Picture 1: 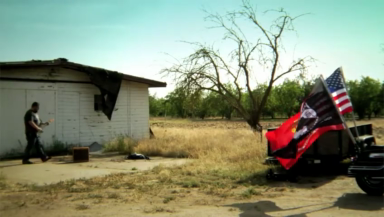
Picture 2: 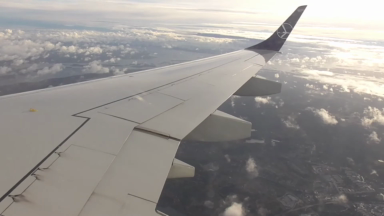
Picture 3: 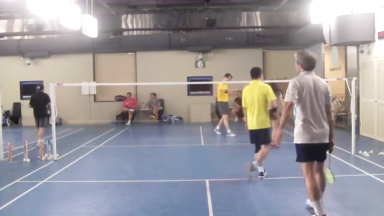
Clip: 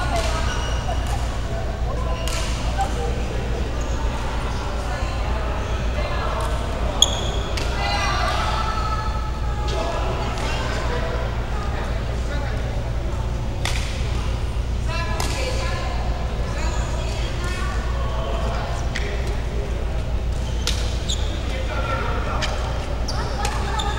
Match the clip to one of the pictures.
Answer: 3